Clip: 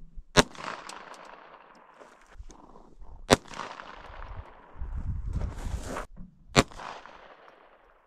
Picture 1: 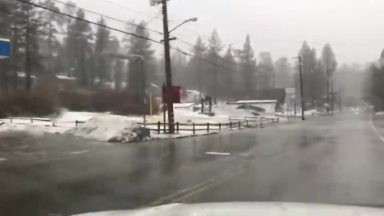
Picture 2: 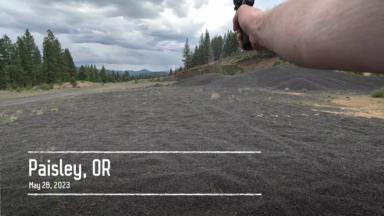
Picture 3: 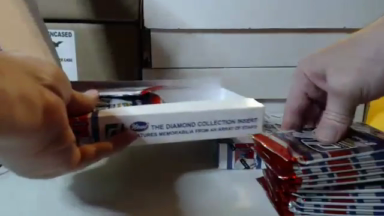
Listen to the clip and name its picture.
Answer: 2